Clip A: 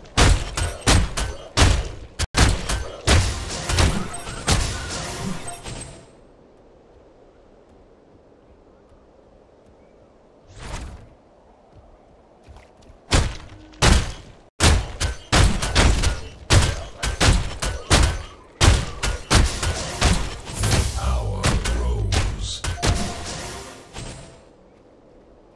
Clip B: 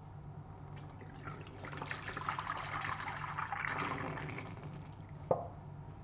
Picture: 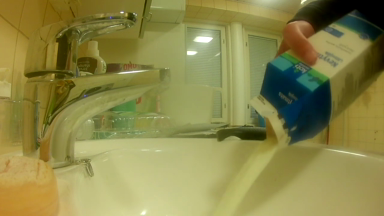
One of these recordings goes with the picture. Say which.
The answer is B